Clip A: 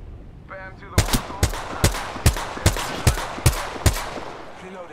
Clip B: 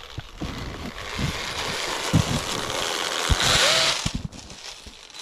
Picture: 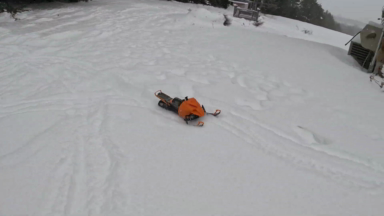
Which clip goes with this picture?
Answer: B